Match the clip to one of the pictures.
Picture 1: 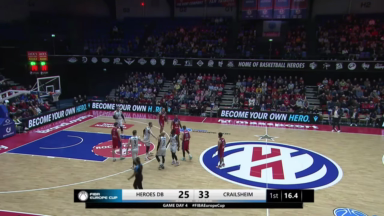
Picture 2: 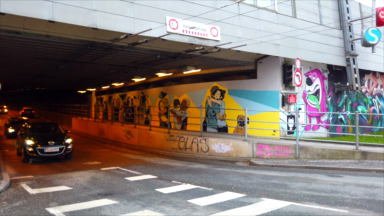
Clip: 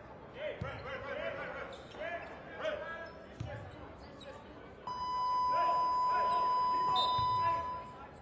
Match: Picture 1